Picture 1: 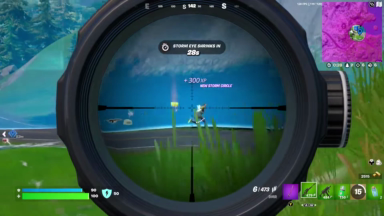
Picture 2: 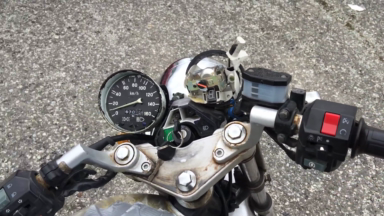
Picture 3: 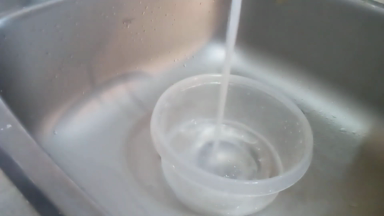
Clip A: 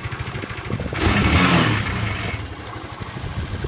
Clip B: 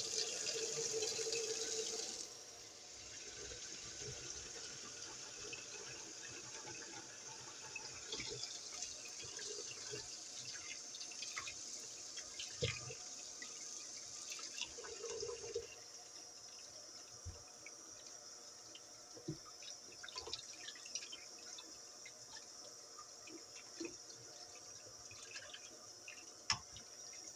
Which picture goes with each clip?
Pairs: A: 2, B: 3